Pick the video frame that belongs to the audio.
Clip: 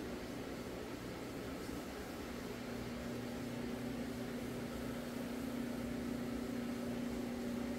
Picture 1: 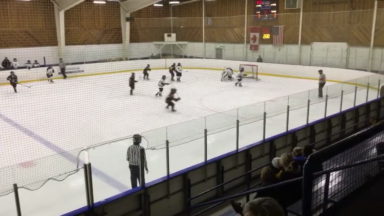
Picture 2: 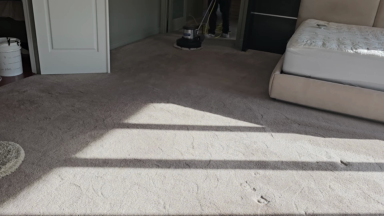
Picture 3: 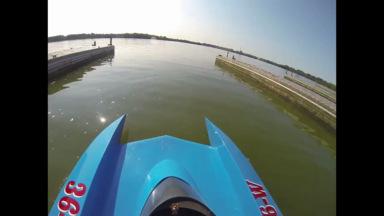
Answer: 2